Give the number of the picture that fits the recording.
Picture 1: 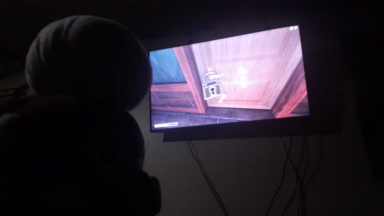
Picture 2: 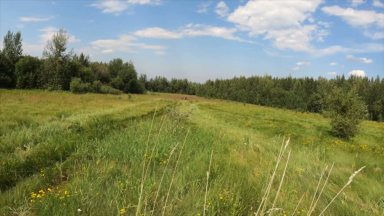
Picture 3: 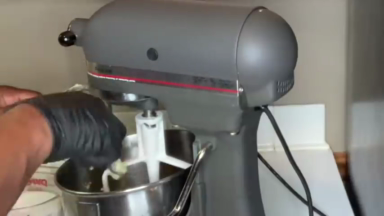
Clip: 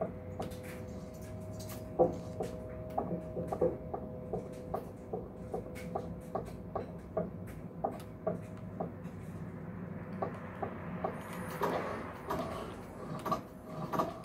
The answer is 1